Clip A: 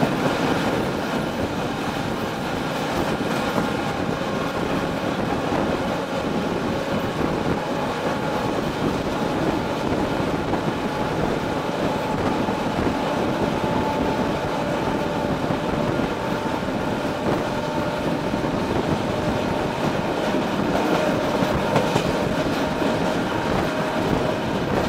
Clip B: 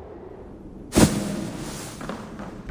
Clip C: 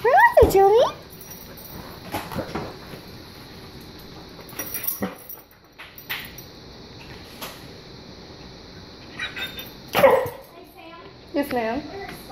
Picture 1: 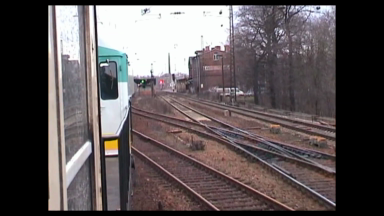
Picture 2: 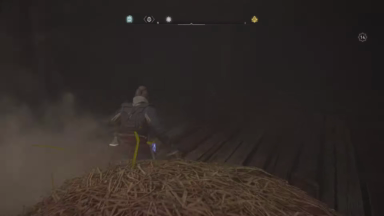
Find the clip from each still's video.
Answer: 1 A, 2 B